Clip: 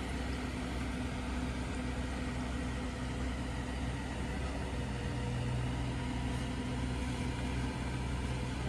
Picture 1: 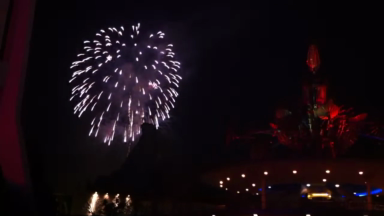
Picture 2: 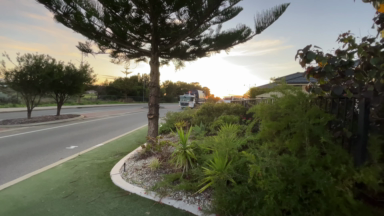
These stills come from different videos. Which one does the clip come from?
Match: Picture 2